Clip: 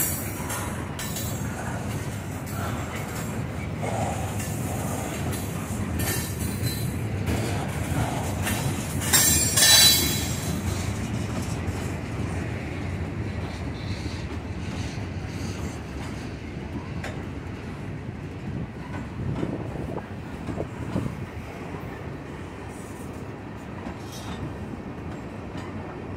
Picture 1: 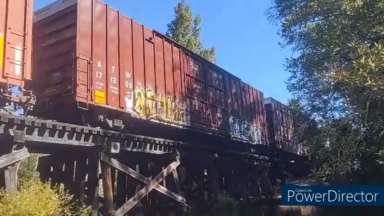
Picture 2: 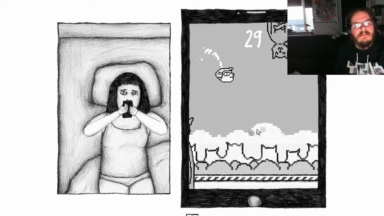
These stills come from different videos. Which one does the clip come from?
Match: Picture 1